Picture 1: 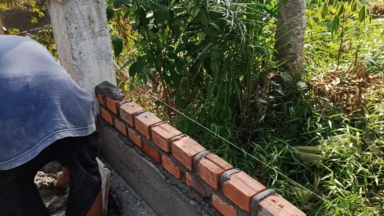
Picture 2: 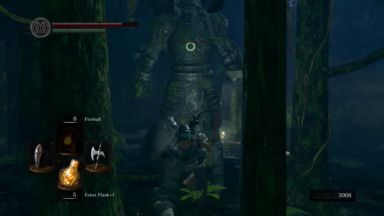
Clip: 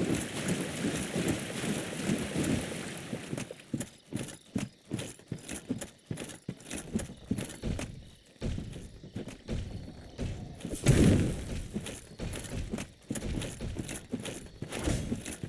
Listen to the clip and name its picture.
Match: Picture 2